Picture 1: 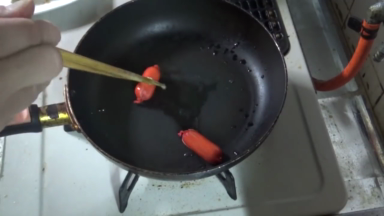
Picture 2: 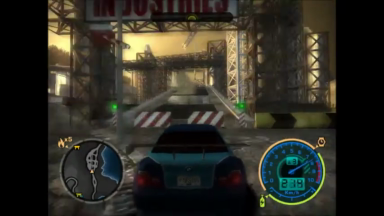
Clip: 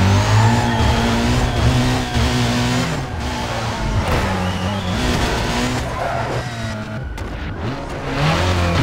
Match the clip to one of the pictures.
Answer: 2